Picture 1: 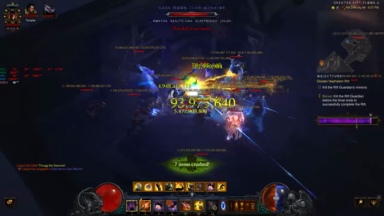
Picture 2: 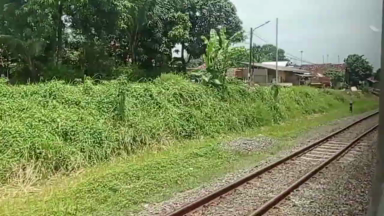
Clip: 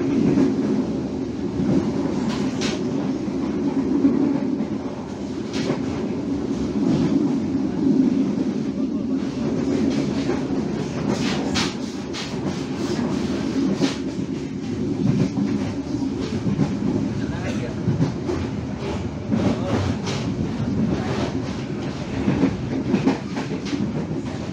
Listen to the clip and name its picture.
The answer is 2